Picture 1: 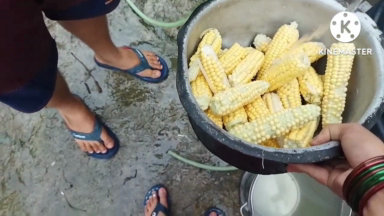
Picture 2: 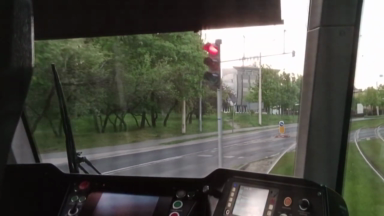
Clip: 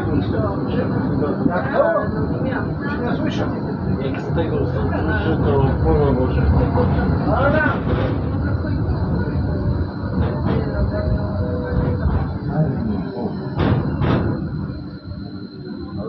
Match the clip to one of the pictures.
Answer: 2